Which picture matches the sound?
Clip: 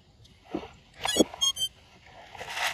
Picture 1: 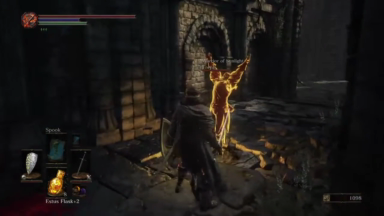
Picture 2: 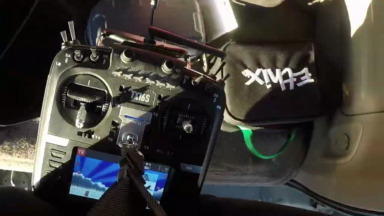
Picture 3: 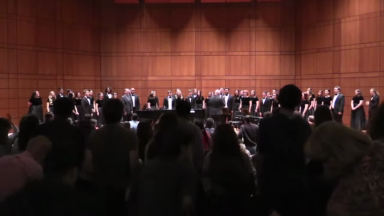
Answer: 2